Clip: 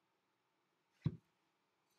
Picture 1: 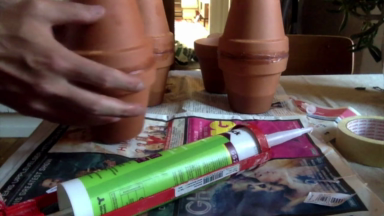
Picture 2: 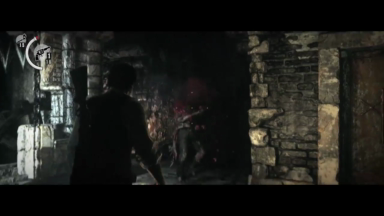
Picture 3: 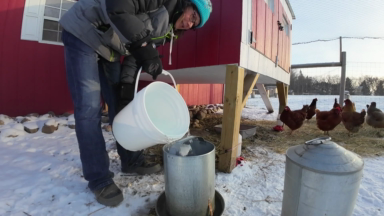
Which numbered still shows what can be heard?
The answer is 1